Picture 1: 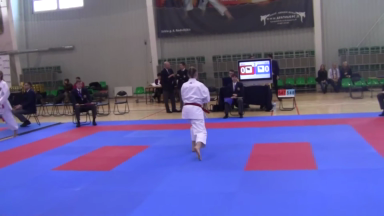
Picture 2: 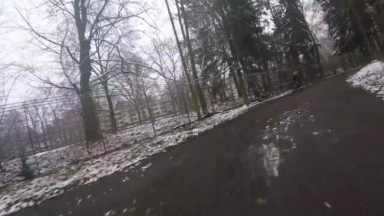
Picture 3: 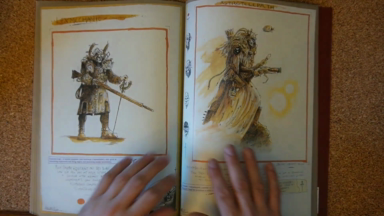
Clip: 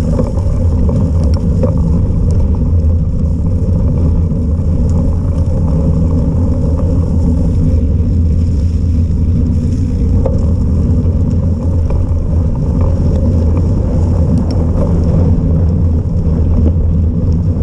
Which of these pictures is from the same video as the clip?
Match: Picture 2